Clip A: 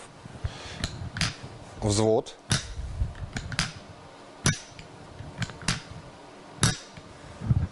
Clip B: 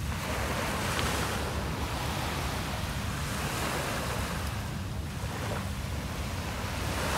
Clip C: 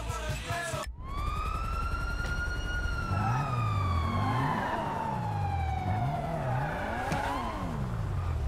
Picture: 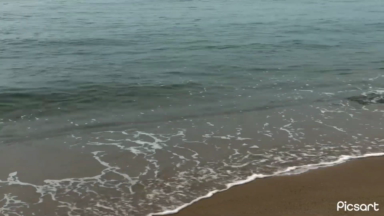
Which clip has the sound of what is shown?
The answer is B